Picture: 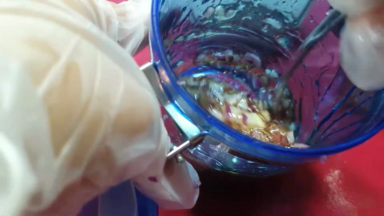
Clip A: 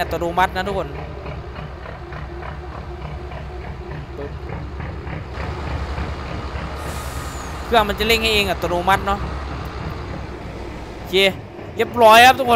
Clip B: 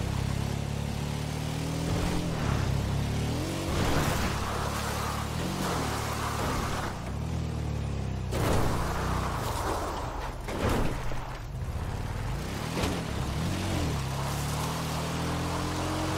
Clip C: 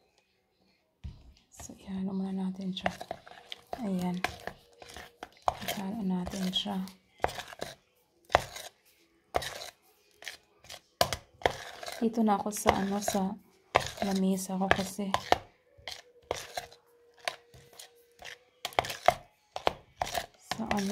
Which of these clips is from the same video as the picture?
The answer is C